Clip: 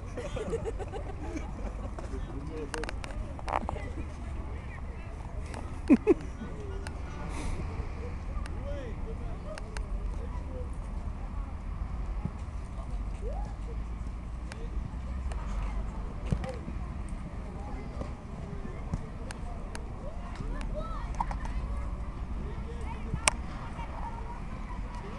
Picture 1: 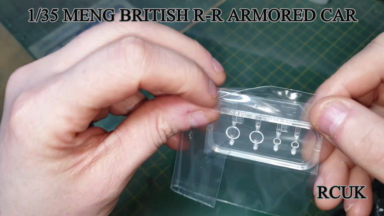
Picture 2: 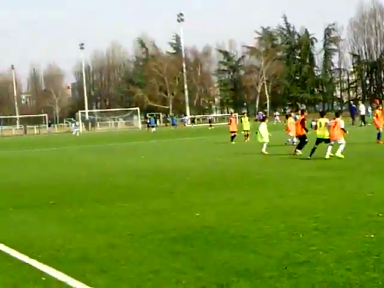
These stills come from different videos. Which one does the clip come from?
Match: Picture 2